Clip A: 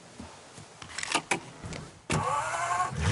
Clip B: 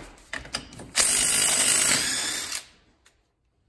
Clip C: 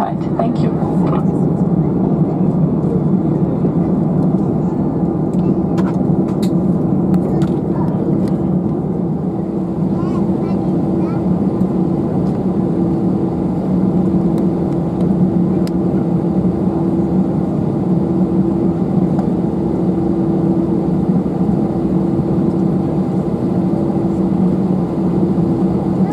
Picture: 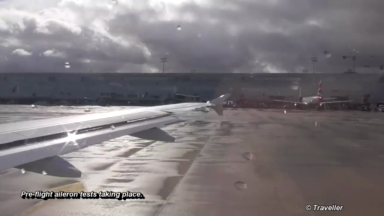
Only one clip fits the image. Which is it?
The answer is C